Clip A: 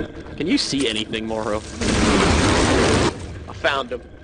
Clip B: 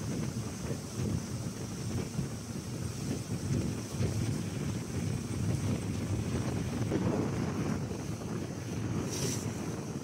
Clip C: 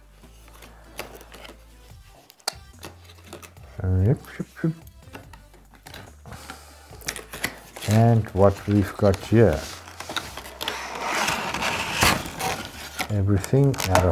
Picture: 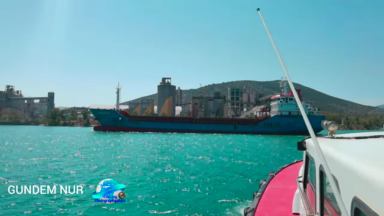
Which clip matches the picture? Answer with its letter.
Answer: B